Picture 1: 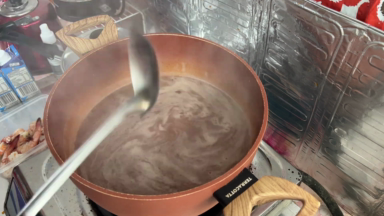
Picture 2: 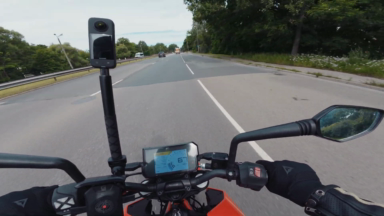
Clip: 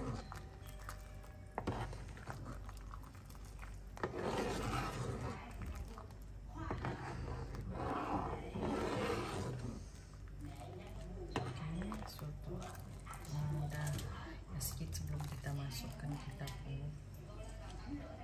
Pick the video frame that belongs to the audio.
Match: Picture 1